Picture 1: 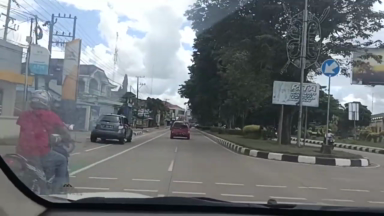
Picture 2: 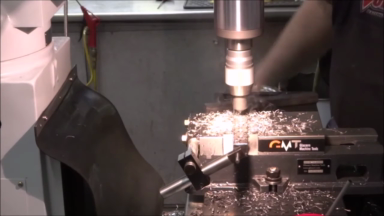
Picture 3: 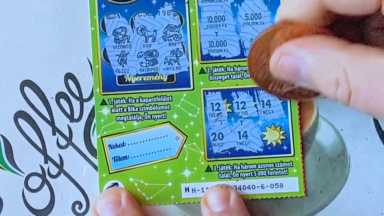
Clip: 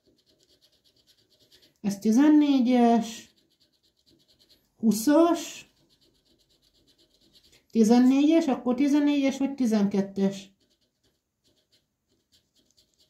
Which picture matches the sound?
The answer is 3